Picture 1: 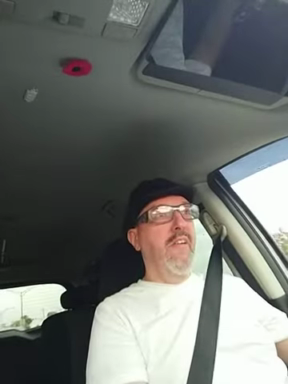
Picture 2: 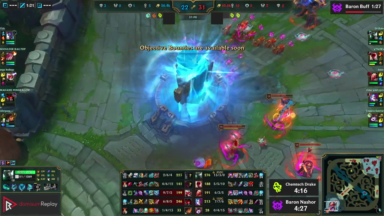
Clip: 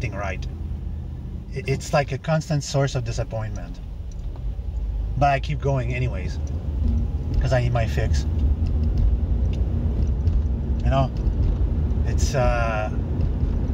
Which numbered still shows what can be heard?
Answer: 1